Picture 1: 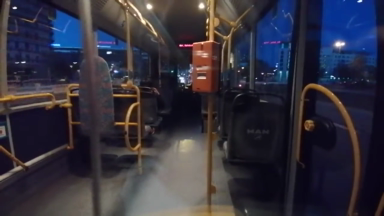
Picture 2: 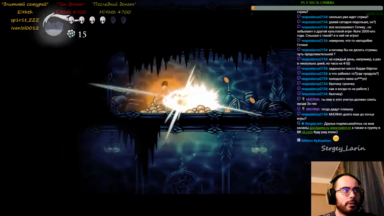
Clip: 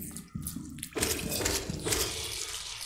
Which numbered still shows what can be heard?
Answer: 2